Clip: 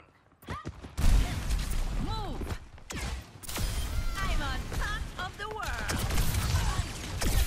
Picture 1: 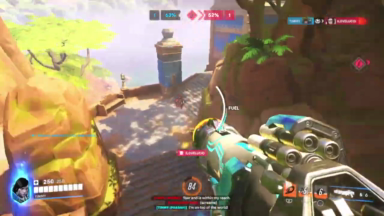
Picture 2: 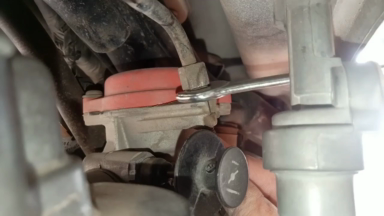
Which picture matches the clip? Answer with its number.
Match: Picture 1